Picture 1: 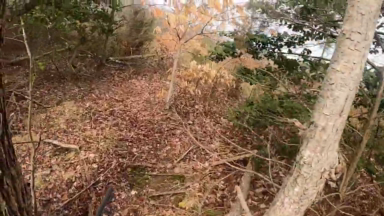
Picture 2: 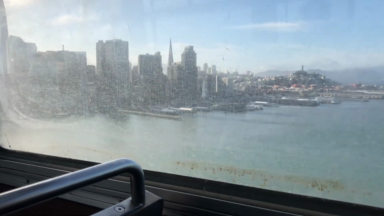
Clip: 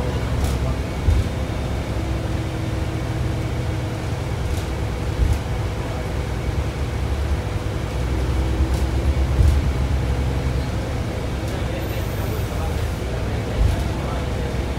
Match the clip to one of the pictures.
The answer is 2